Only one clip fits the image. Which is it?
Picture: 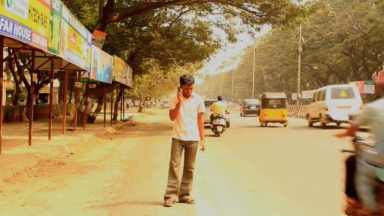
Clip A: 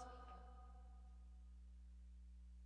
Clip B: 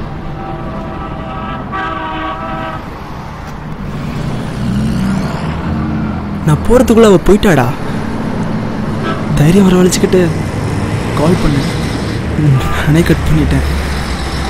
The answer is B